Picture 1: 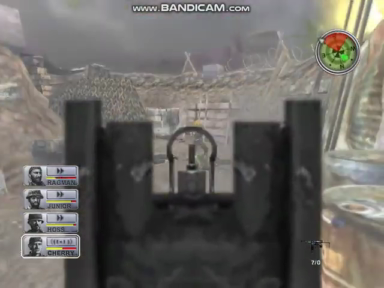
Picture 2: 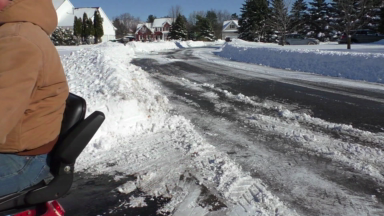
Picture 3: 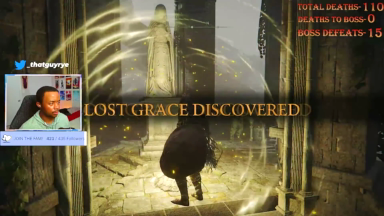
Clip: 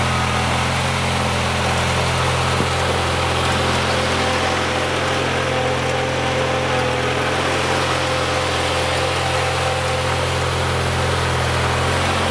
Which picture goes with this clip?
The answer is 2